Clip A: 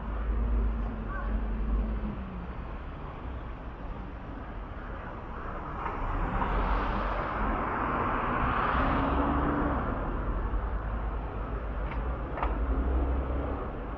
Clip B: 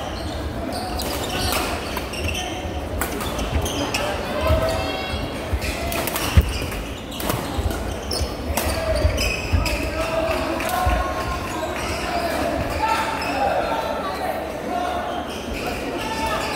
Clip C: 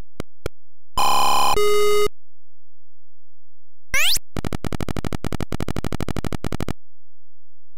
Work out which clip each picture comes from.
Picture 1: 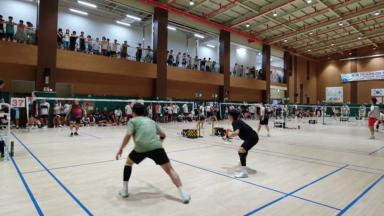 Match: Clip B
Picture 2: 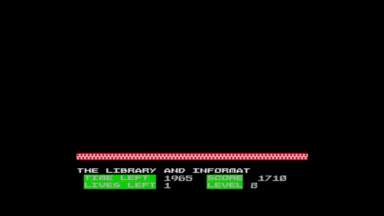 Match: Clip C